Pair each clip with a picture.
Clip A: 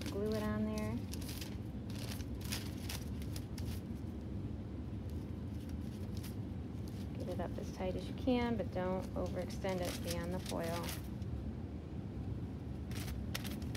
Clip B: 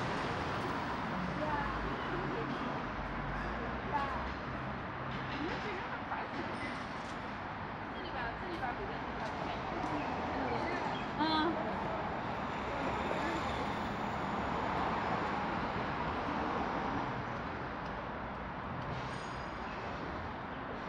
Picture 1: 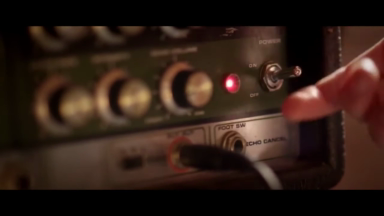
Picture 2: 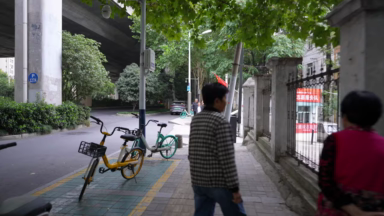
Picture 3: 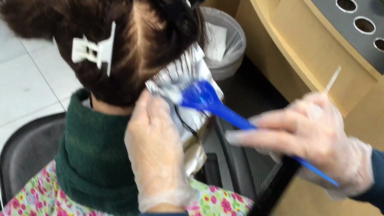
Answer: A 3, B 2